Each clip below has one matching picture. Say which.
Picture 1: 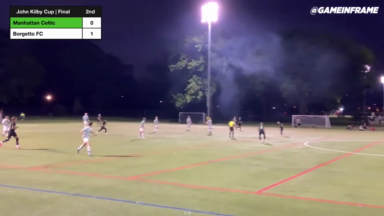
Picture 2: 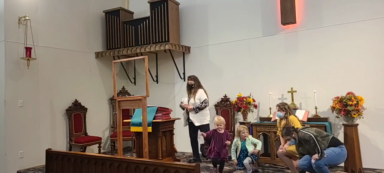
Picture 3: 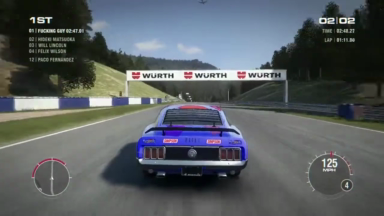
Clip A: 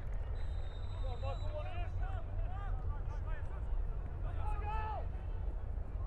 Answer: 1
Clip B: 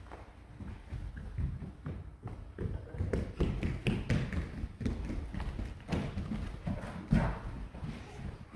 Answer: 2